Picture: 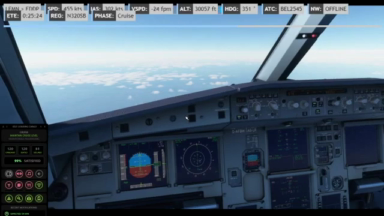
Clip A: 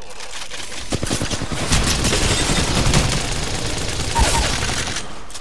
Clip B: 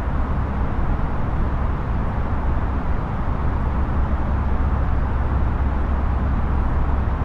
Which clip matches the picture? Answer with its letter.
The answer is B